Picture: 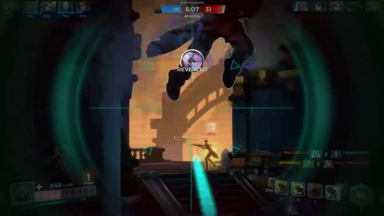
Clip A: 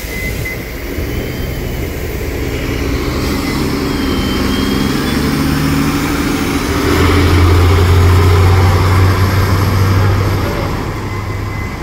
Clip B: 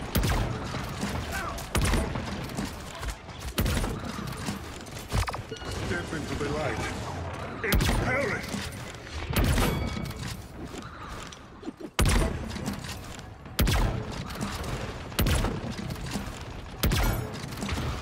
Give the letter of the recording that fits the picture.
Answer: B